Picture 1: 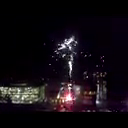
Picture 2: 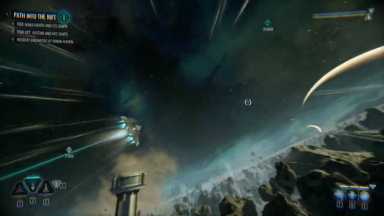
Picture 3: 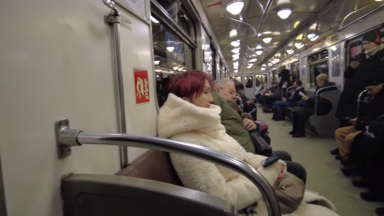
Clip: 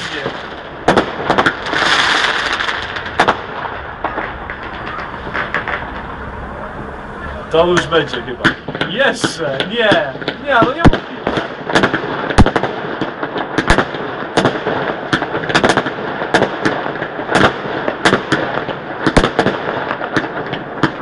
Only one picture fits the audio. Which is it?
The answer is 1